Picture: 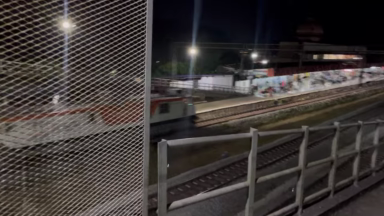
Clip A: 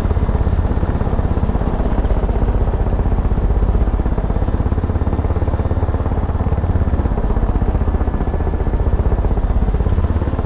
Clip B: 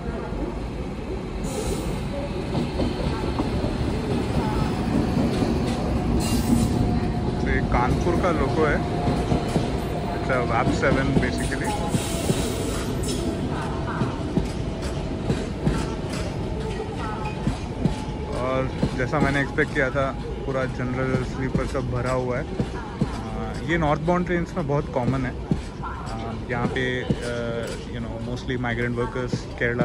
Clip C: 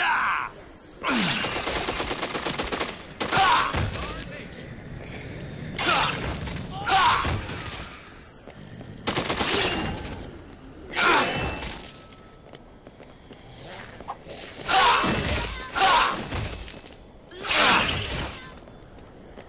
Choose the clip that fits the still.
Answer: B